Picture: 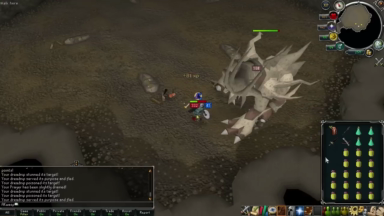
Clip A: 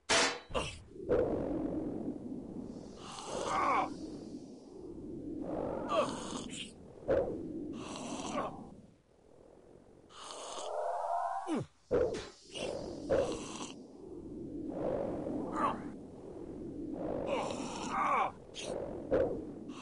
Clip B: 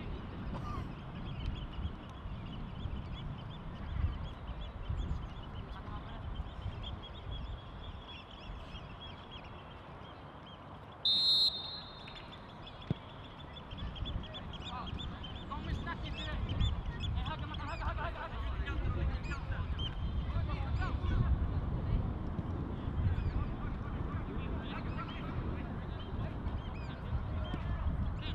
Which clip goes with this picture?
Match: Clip A